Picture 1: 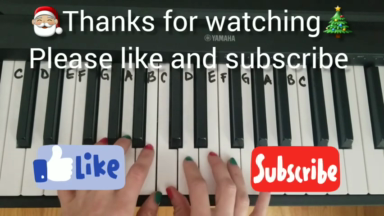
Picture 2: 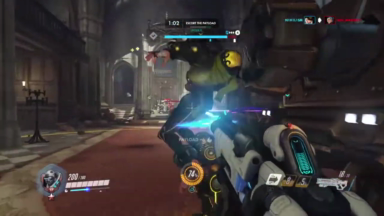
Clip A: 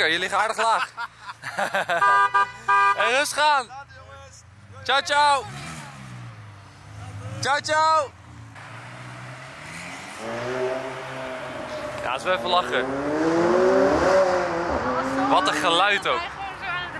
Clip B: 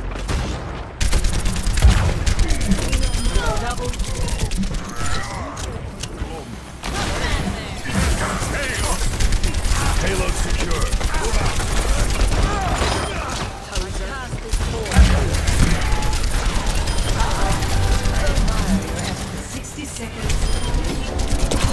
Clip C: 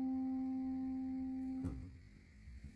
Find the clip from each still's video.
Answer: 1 C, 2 B